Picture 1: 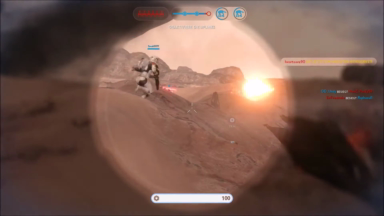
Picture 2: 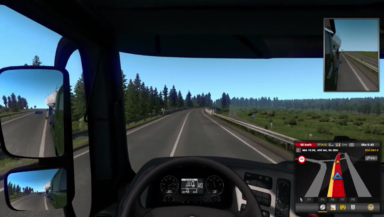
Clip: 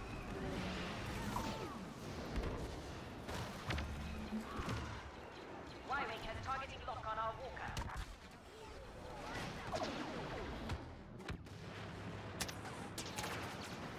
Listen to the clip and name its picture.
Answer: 1